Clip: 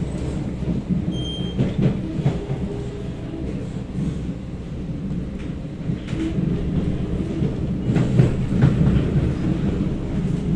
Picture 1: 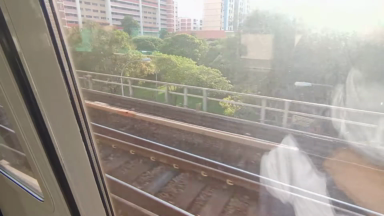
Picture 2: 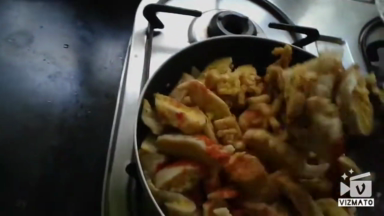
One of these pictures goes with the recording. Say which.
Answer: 1